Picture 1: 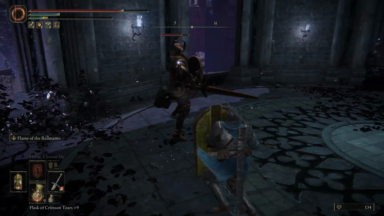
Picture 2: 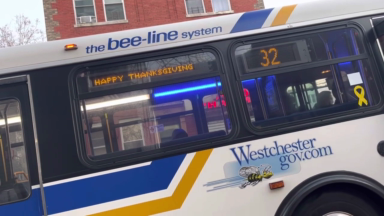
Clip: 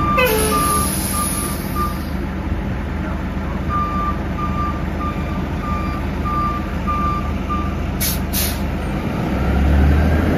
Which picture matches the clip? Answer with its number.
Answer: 2